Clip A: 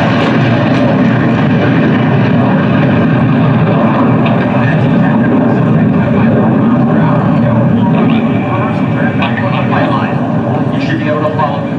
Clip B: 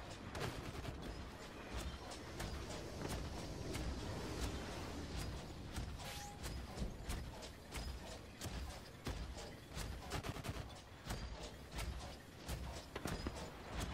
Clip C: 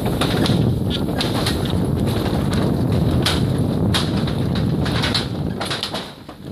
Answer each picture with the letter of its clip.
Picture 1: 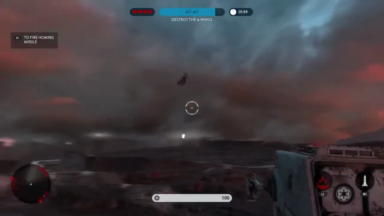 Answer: B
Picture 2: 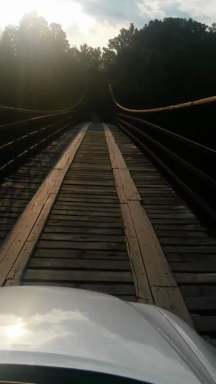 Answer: C